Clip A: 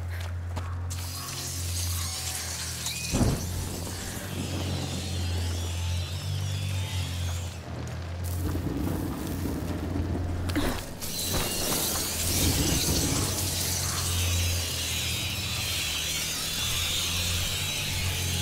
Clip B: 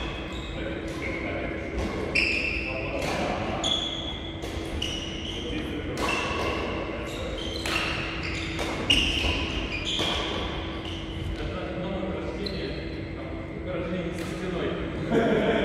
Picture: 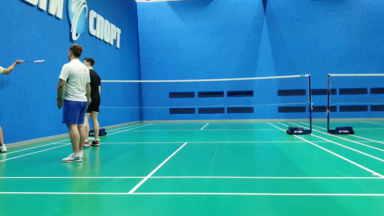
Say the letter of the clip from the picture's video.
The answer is B